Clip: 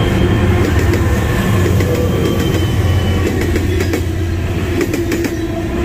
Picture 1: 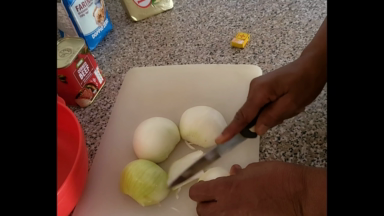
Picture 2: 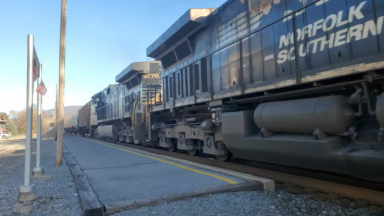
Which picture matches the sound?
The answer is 2